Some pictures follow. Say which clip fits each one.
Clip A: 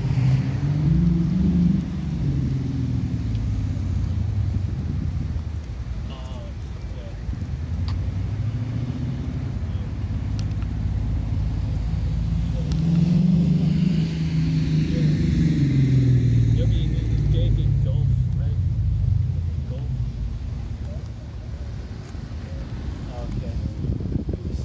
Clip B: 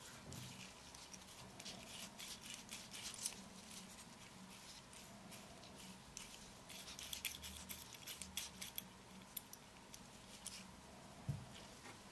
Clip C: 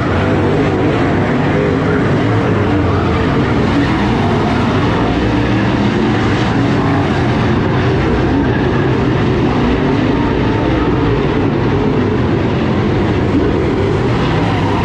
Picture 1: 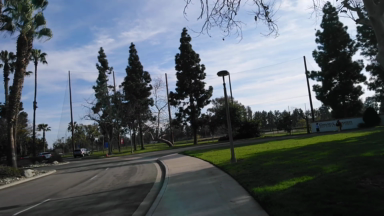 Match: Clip A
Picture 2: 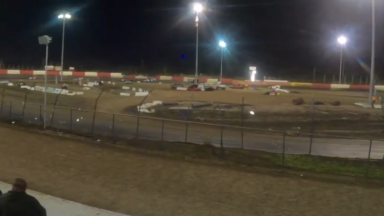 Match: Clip C